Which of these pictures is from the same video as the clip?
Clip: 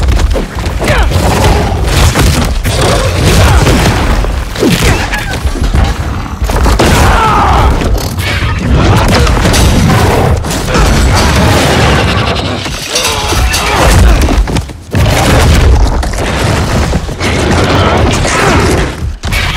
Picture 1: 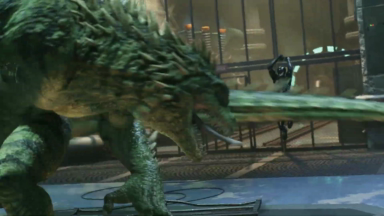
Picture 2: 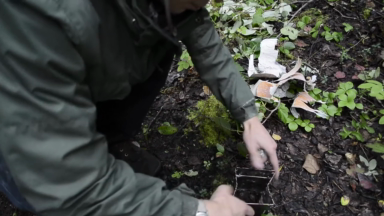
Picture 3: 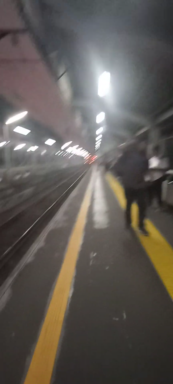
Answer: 1